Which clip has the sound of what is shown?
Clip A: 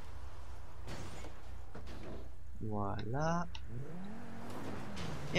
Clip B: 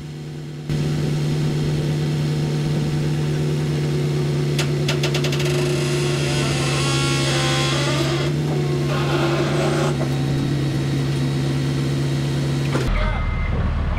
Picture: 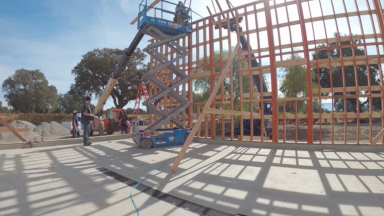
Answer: B